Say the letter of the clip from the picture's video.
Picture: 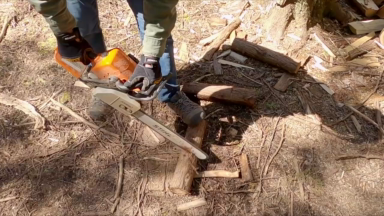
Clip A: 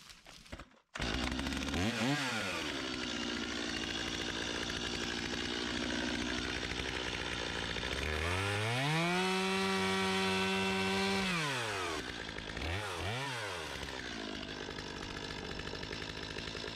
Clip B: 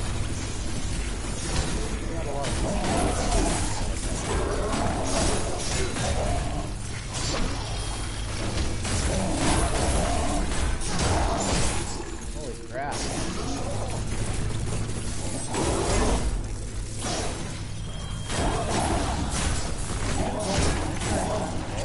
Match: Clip A